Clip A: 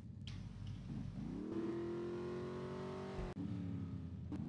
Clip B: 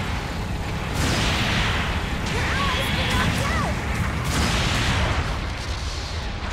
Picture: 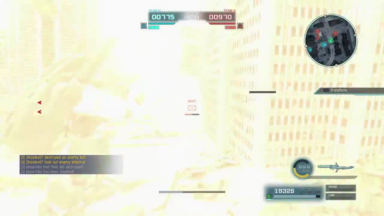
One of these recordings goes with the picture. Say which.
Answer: B